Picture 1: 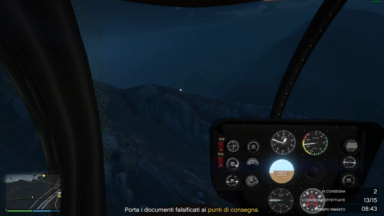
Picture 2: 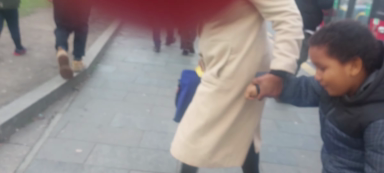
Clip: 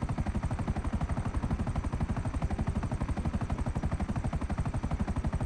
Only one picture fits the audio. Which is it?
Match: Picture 1